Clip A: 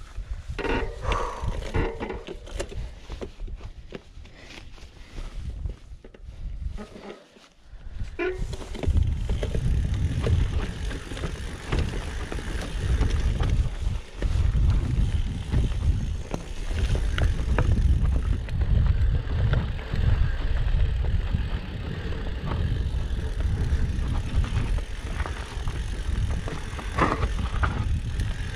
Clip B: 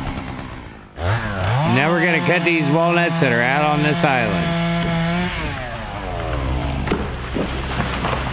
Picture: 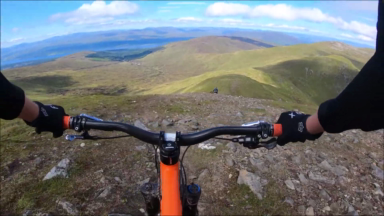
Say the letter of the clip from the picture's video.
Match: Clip A